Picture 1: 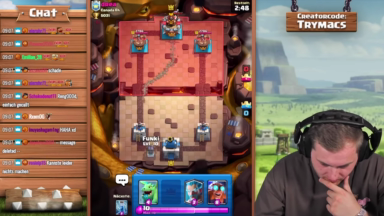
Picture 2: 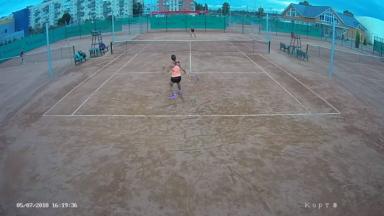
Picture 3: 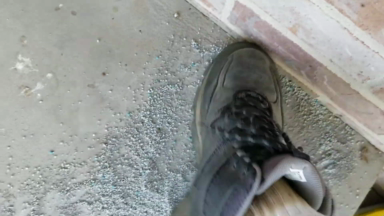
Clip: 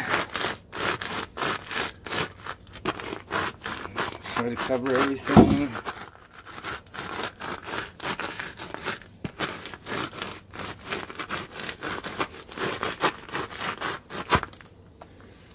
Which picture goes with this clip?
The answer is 3